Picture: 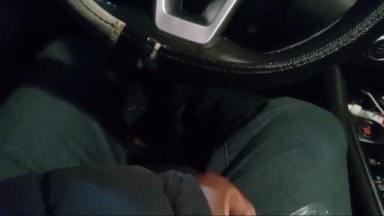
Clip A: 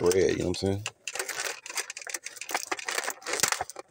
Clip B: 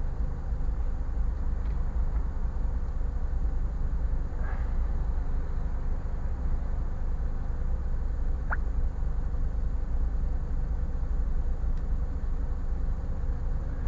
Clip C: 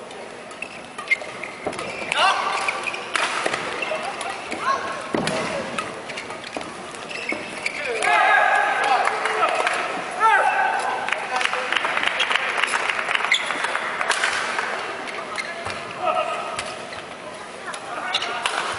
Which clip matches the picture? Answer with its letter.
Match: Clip A